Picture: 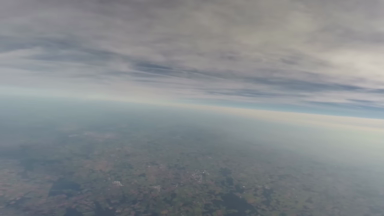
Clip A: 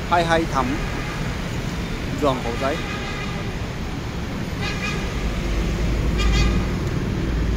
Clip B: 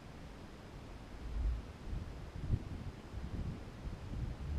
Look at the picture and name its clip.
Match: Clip B